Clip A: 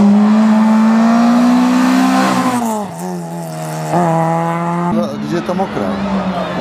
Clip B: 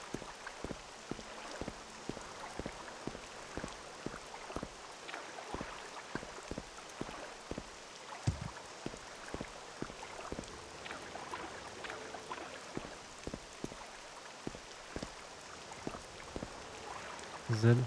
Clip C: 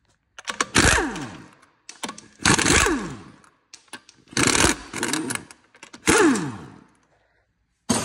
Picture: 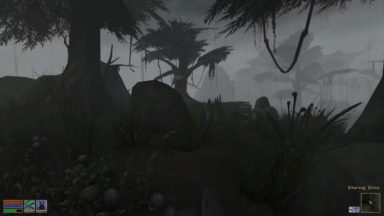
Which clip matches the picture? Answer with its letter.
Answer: B